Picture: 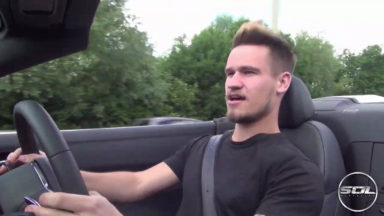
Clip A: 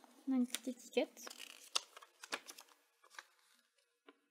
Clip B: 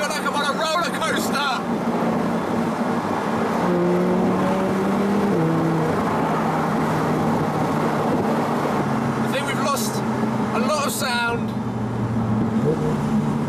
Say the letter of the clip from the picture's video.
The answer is B